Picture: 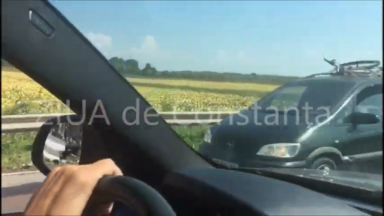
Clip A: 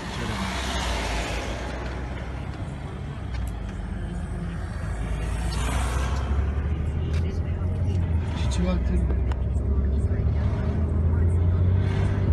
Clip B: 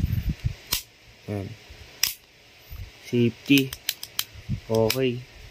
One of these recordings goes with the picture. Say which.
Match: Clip A